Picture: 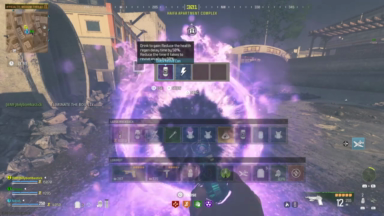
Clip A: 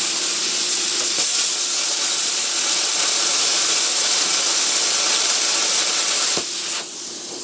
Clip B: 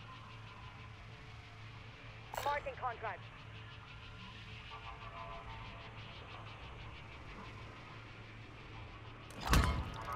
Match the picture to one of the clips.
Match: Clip B